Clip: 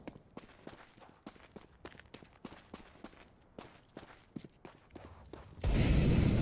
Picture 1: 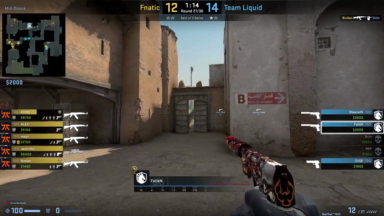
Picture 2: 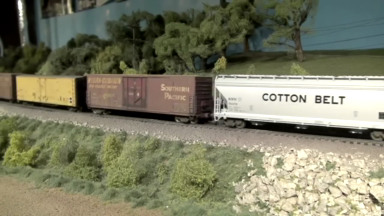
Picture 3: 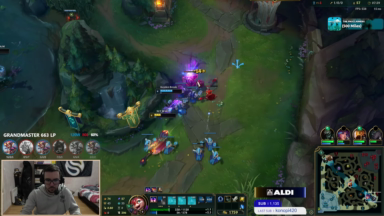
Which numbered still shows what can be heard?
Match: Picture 1